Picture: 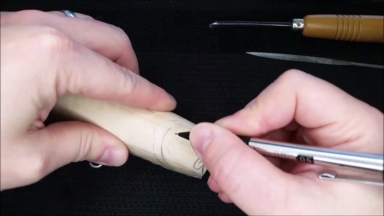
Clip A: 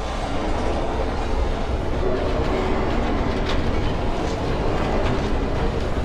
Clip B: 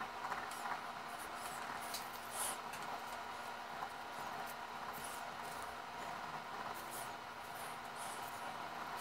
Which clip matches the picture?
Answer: B